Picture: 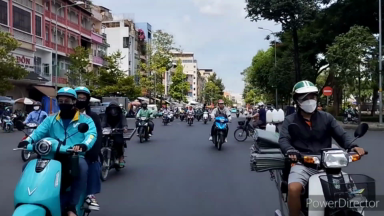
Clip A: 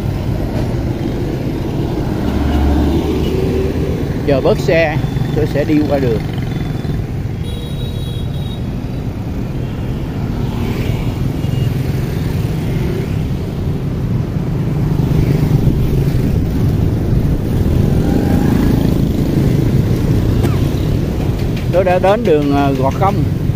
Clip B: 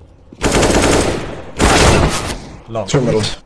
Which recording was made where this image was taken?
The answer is A